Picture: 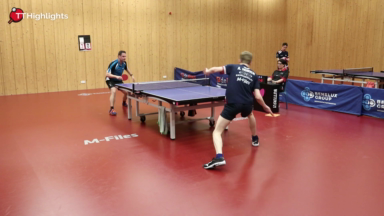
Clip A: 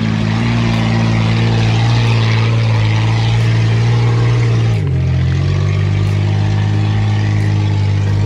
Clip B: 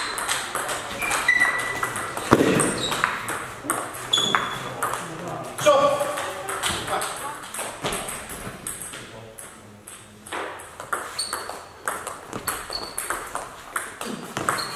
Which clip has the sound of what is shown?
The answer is B